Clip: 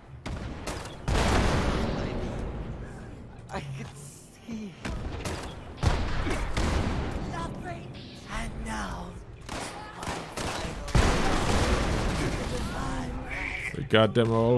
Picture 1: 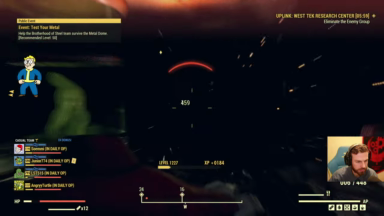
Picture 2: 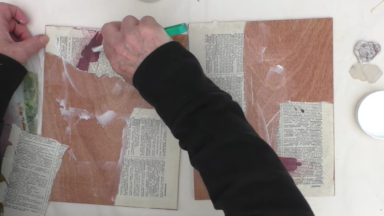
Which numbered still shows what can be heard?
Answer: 1